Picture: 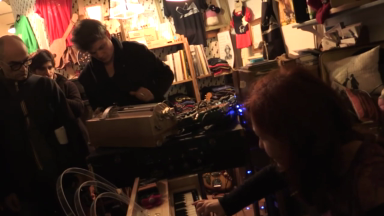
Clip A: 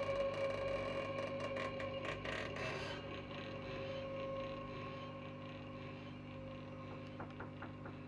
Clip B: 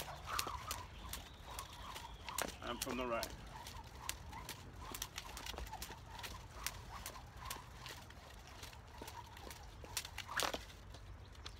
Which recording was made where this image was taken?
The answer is A